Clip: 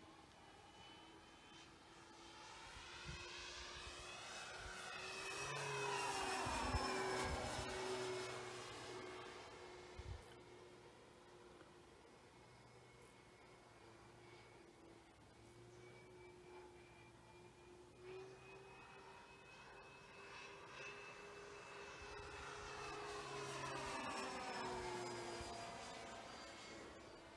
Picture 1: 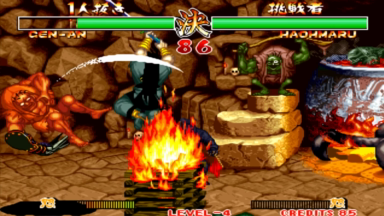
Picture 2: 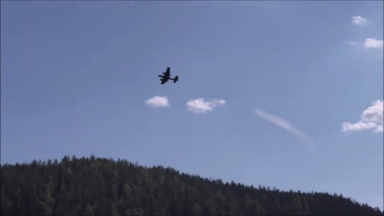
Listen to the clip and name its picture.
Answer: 2